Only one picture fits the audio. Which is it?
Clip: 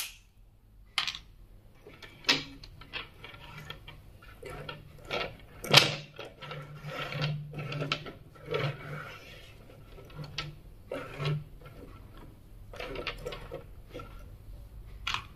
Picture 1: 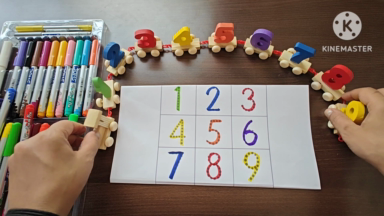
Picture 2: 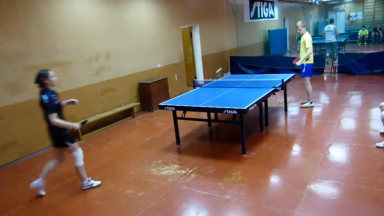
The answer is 1